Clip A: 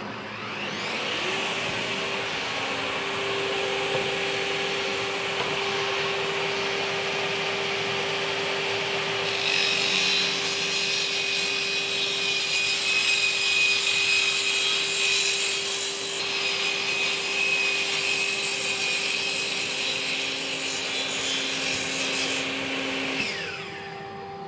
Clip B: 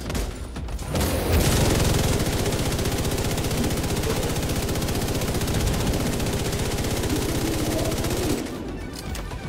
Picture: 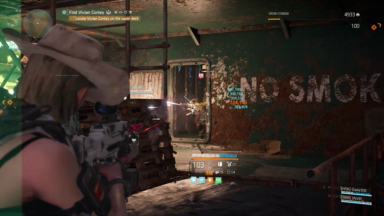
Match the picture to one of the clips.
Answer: B